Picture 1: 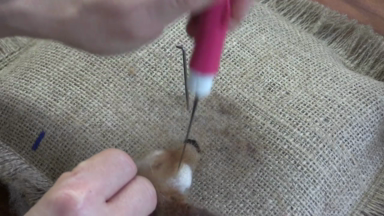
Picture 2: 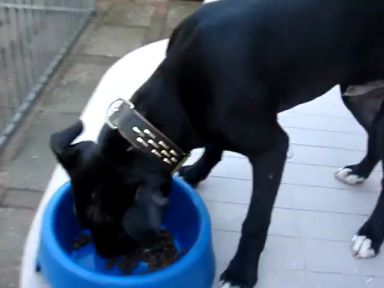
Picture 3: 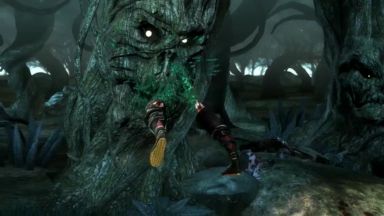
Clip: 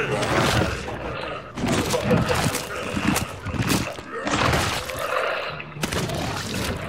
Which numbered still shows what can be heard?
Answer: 3